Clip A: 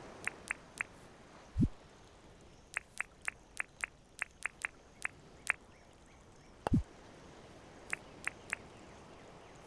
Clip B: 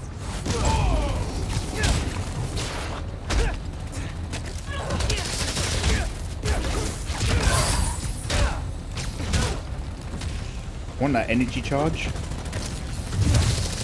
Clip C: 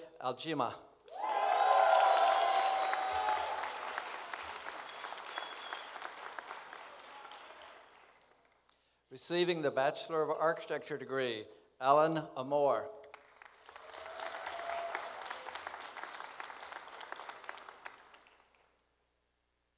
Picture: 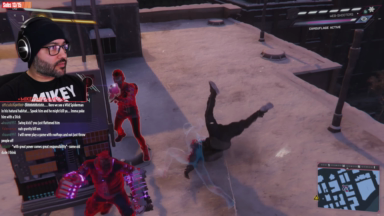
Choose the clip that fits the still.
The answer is B